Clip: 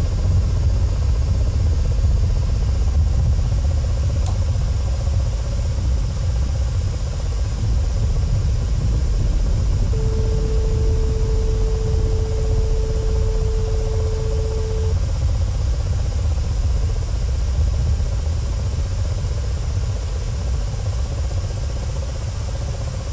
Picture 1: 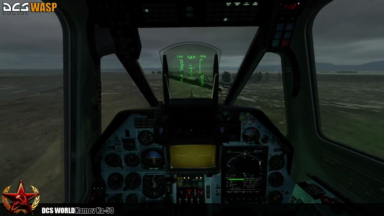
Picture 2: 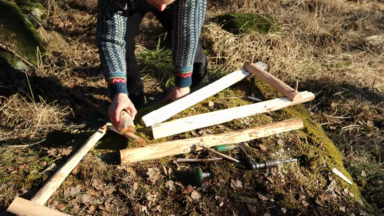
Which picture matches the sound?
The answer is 1